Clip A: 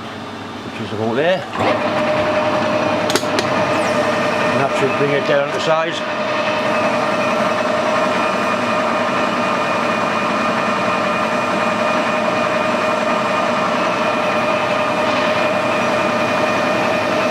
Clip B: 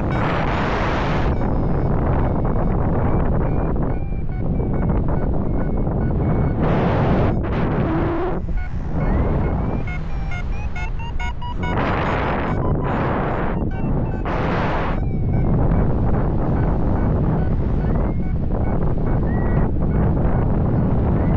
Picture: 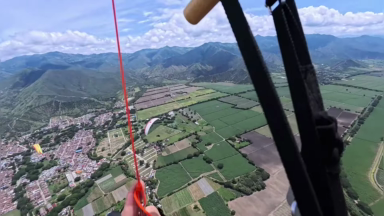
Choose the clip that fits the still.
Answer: B